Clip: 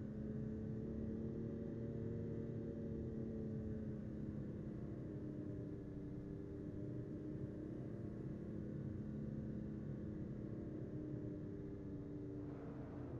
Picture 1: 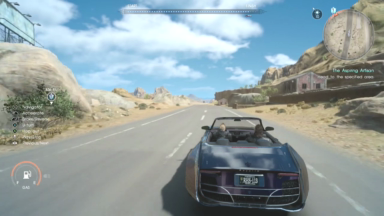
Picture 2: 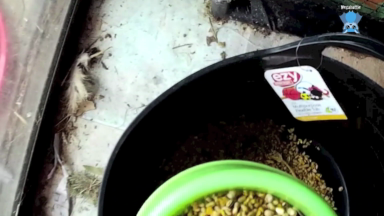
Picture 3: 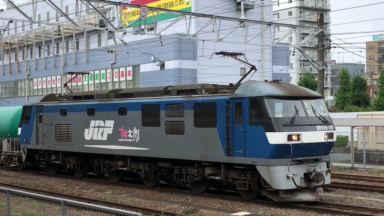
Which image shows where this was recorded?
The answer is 1